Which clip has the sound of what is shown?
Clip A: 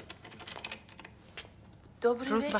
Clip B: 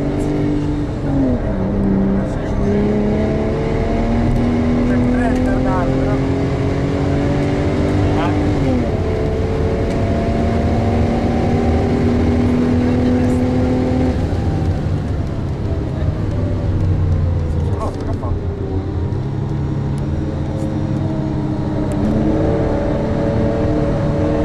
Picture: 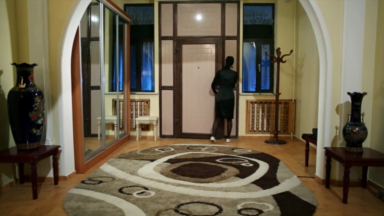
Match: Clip A